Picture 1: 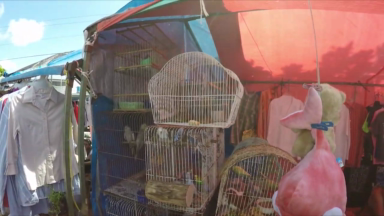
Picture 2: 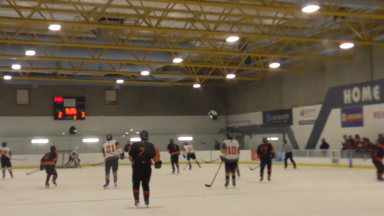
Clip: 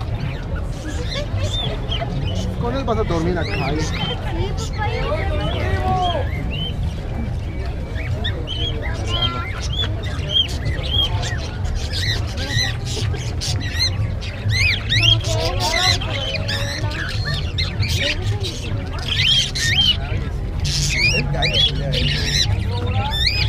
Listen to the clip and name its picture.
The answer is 1